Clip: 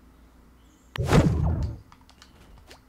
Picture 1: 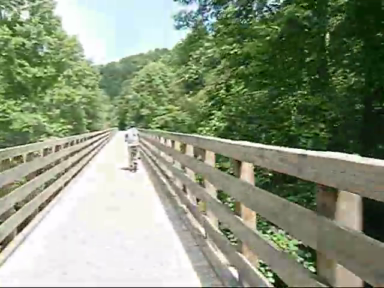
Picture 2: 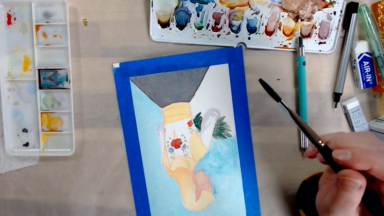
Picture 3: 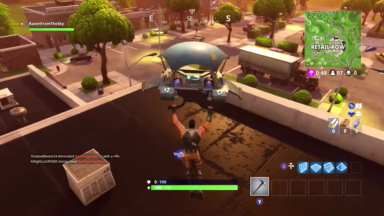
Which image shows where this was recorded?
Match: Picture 3